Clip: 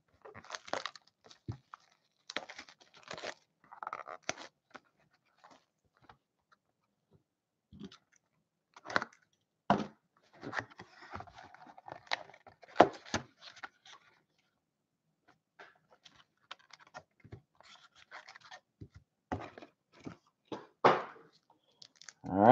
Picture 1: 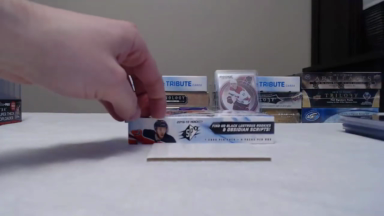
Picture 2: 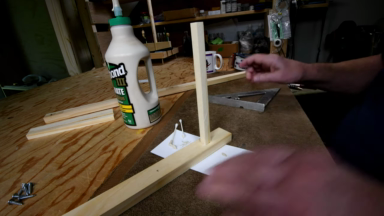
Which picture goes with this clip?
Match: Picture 1